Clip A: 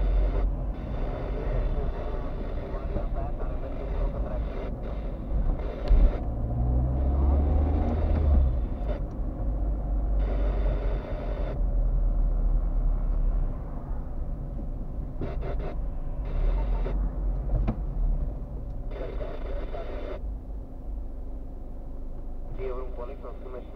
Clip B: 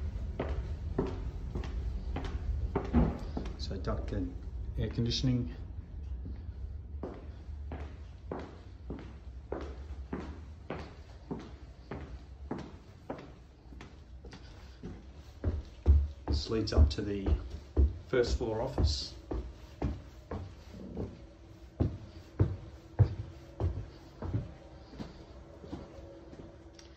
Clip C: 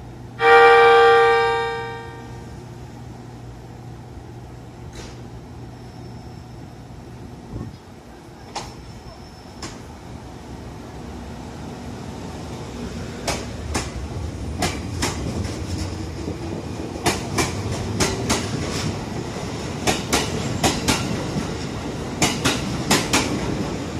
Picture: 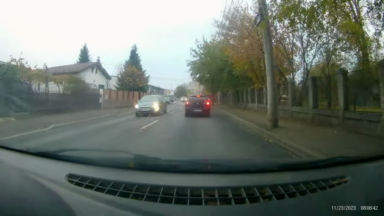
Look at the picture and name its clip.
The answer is A